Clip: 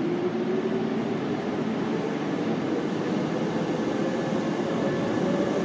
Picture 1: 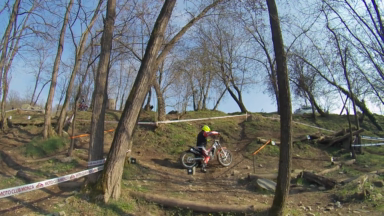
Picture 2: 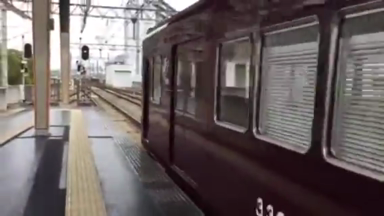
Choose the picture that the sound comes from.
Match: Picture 2